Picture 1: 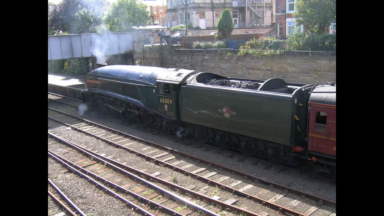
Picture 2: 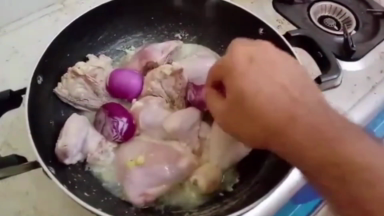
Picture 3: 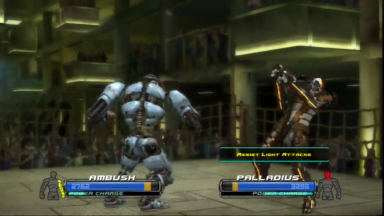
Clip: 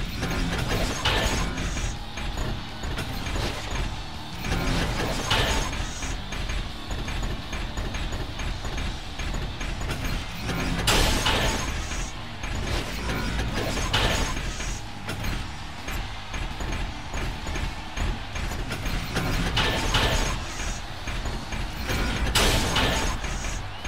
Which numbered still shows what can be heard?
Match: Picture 3